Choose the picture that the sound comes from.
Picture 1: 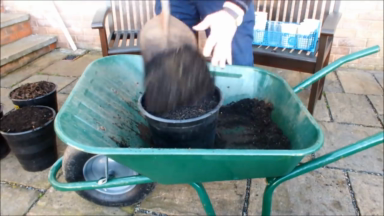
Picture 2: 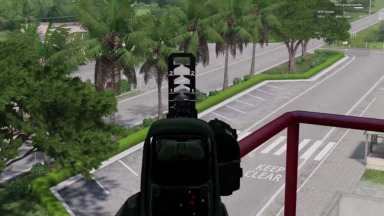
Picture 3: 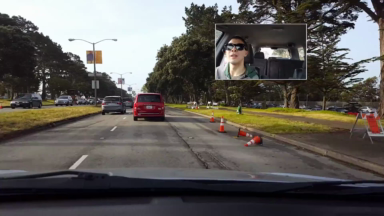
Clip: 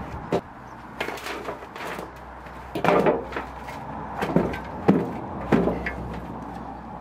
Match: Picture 1